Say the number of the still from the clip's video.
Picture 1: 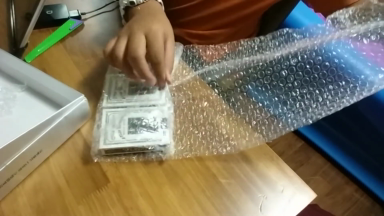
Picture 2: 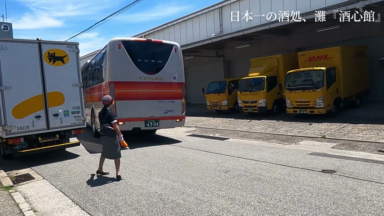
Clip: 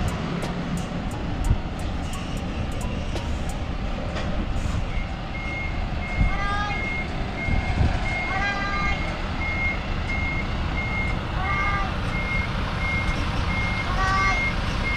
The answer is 2